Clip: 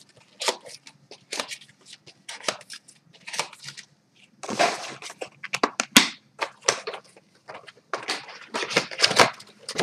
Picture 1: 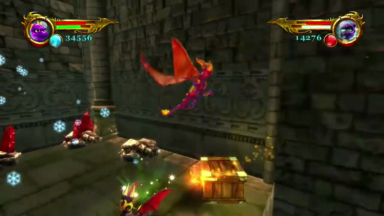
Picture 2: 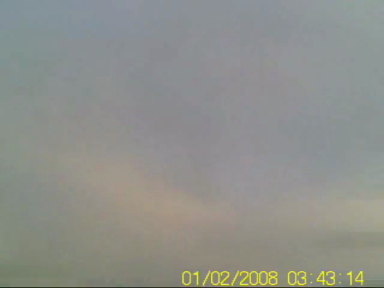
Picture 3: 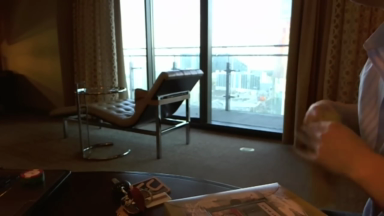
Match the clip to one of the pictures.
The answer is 3